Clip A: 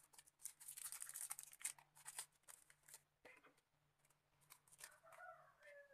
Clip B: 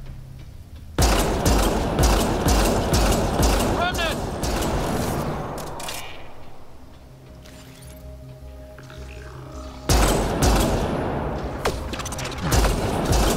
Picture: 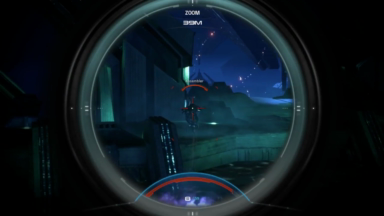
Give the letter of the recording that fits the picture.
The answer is B